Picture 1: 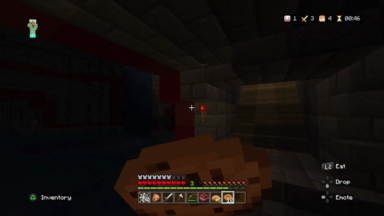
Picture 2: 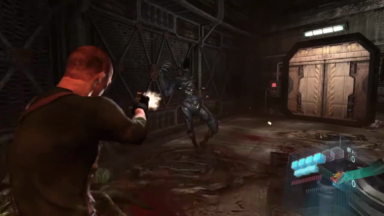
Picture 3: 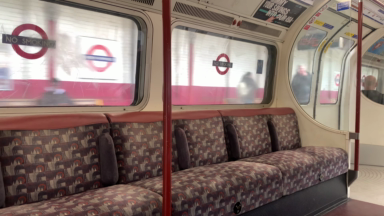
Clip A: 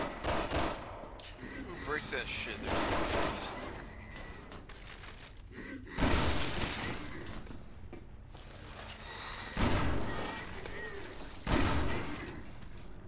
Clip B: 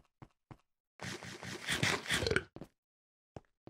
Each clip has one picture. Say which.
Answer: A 2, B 1